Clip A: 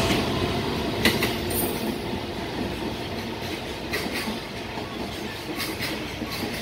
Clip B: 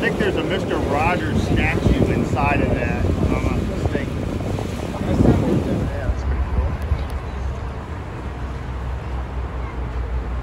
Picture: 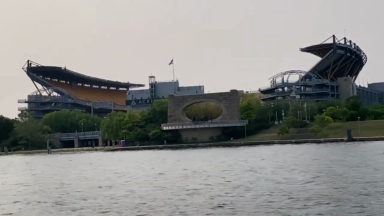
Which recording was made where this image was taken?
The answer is B